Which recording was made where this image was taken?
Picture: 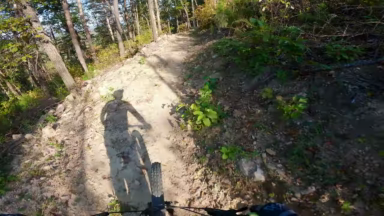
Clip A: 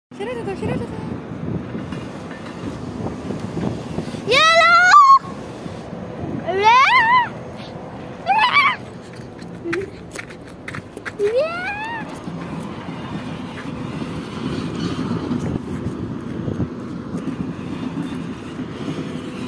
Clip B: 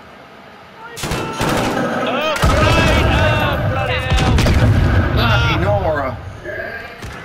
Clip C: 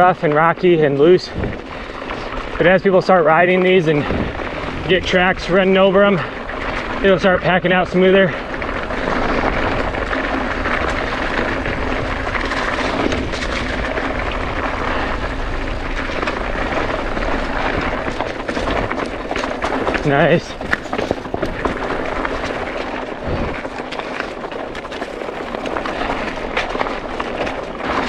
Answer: C